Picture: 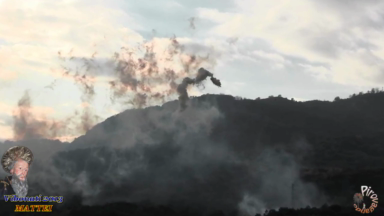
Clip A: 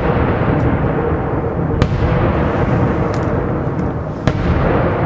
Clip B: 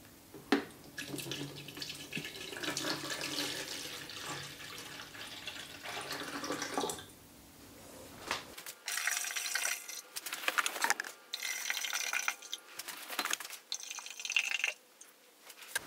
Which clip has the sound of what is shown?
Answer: A